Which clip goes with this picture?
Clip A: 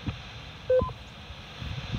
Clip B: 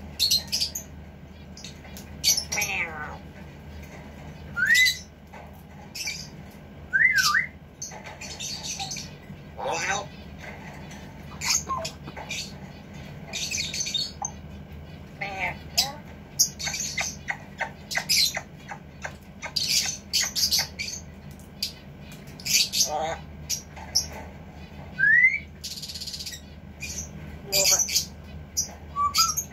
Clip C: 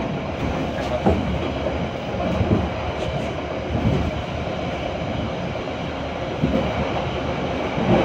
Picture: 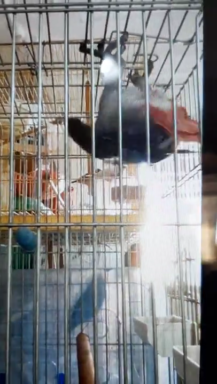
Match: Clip B